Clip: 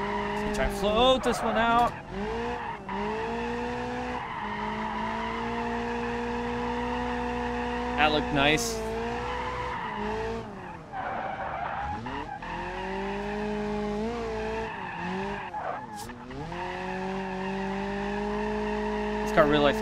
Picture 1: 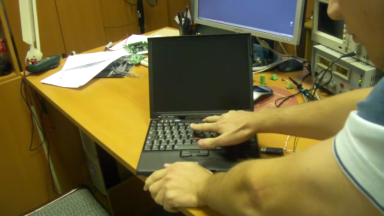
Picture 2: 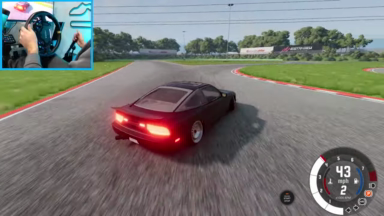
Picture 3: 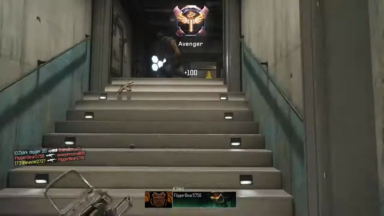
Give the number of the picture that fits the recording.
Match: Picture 2